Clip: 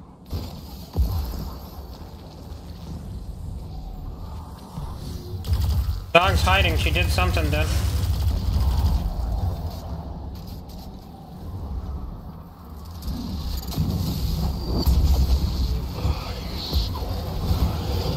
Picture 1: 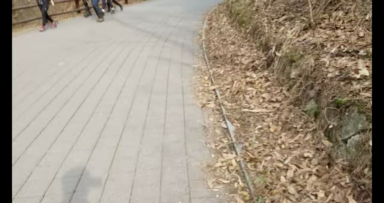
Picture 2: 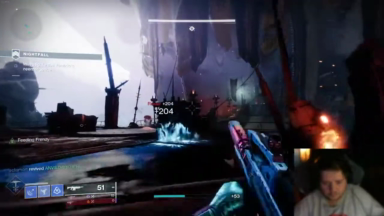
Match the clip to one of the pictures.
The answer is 2